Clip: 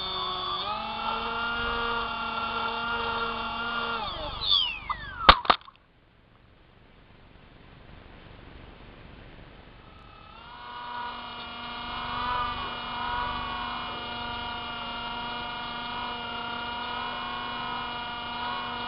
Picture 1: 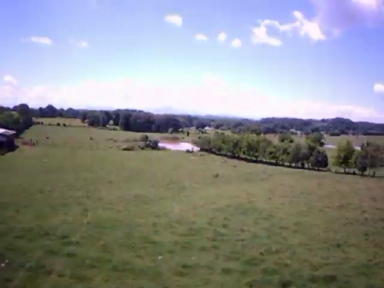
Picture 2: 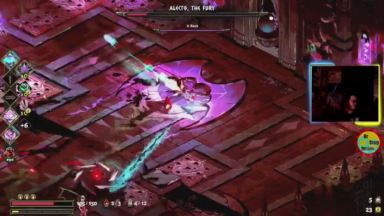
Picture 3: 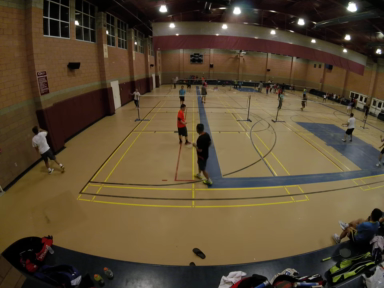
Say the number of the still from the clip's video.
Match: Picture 1